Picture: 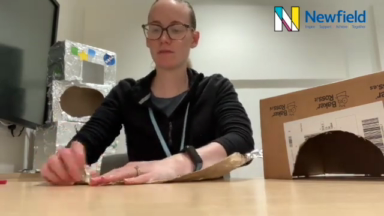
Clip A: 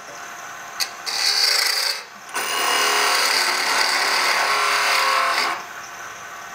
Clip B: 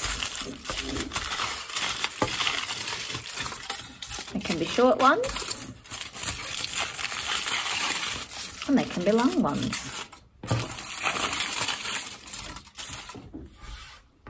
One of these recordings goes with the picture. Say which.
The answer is B